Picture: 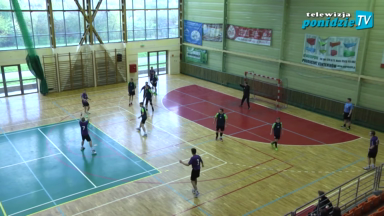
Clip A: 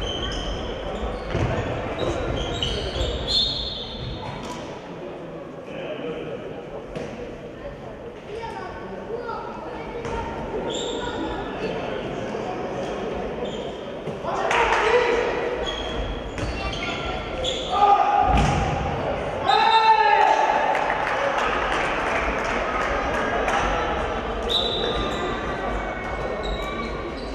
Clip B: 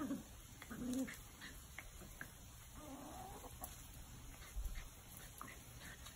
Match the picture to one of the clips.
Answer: A